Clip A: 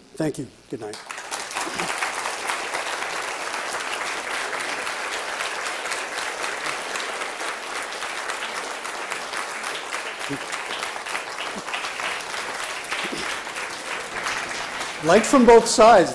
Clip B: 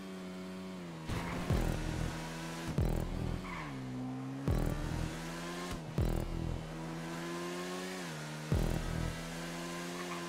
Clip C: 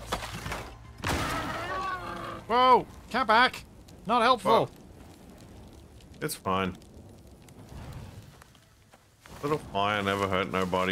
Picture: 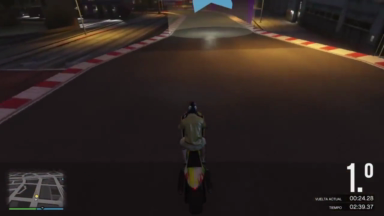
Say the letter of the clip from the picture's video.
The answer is B